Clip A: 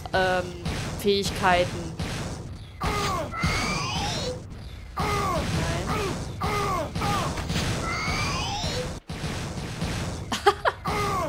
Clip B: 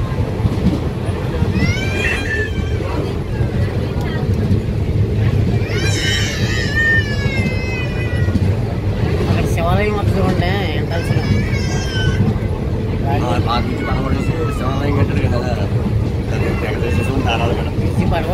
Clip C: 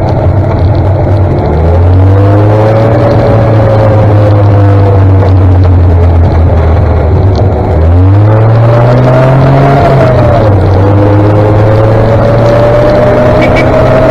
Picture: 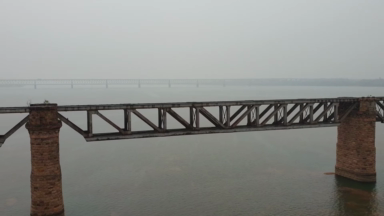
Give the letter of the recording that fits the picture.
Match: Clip B